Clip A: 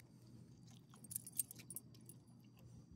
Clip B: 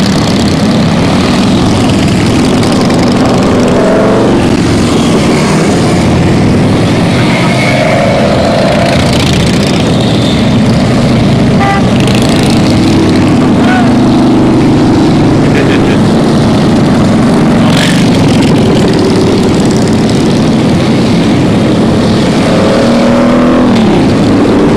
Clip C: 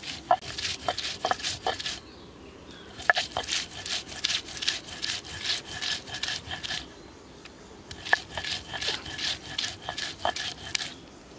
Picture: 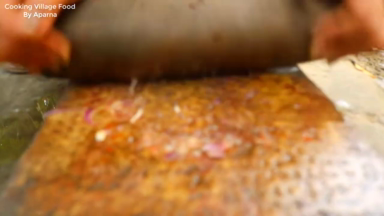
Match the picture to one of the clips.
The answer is C